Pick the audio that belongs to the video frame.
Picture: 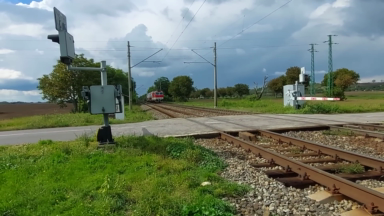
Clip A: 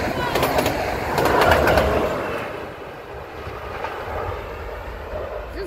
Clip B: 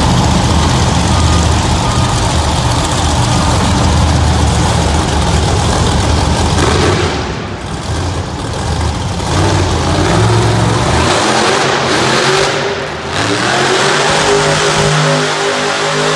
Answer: A